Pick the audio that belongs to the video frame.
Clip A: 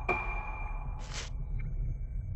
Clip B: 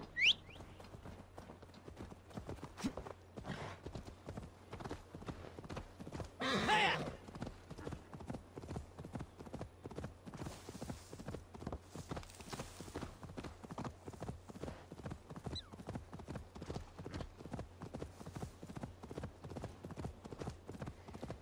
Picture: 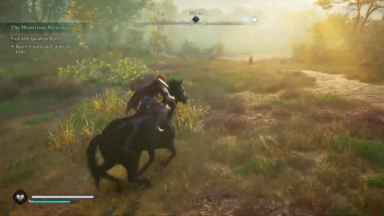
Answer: B